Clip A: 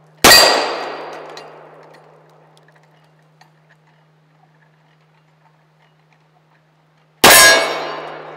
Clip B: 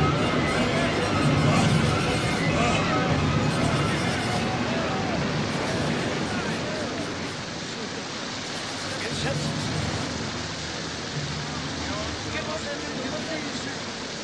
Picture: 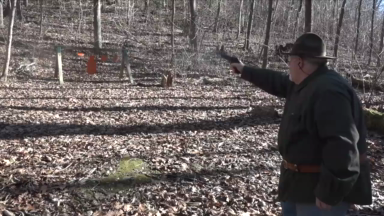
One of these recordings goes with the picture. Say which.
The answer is A